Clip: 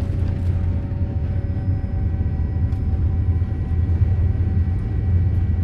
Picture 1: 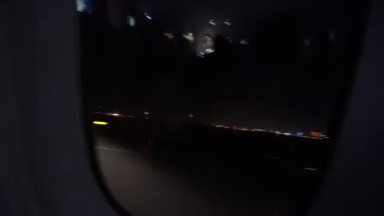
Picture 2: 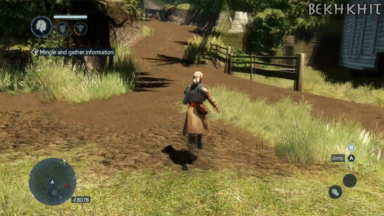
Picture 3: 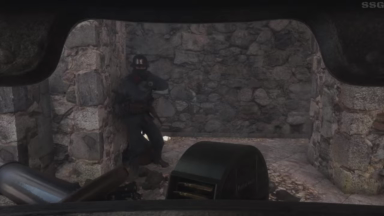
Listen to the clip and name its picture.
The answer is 1